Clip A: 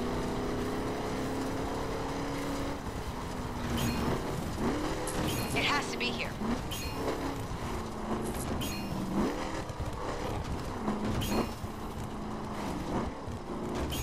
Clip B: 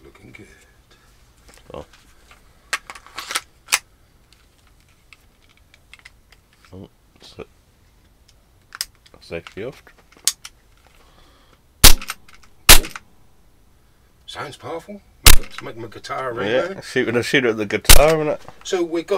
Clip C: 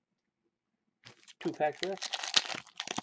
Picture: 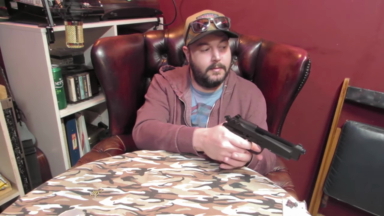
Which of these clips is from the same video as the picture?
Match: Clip B